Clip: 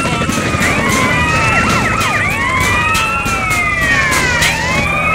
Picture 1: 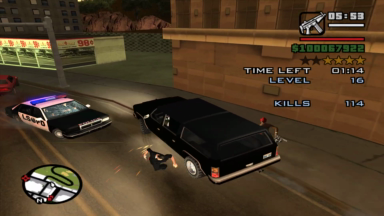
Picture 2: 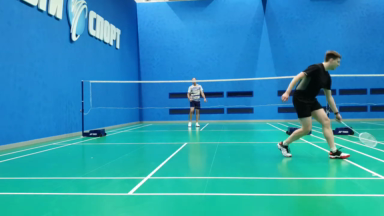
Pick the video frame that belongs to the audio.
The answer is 1